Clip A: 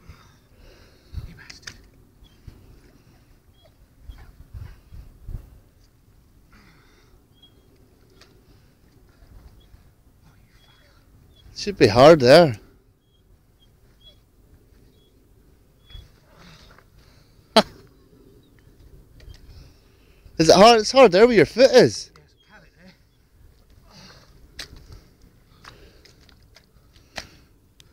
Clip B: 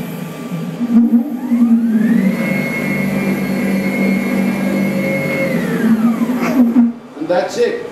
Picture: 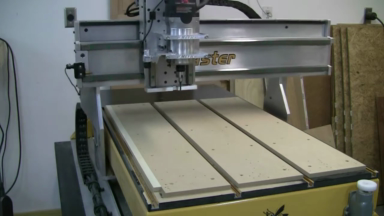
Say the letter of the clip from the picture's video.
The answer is B